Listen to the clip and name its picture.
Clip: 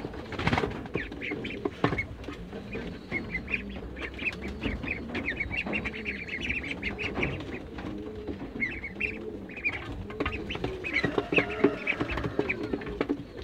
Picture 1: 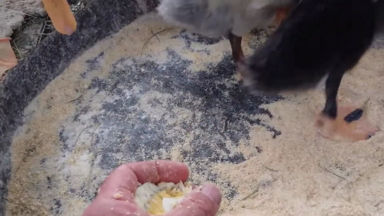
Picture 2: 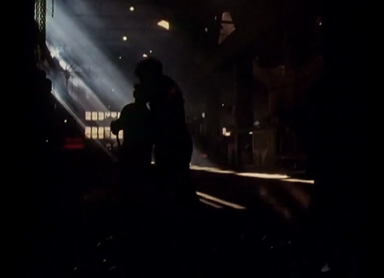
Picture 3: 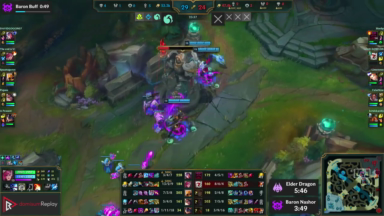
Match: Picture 1